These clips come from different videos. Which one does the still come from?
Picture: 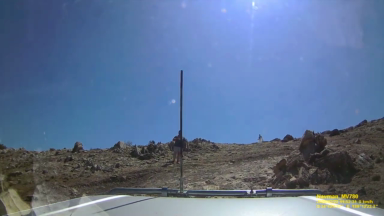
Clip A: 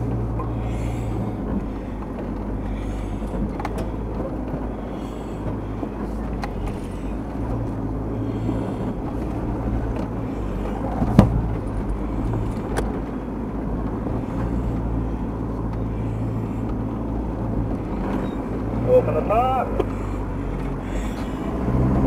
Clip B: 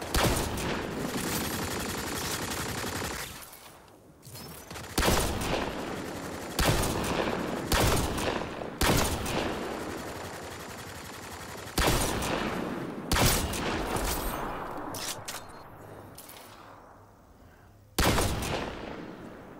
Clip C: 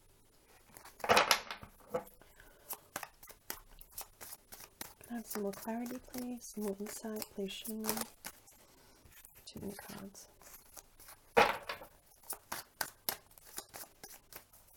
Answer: A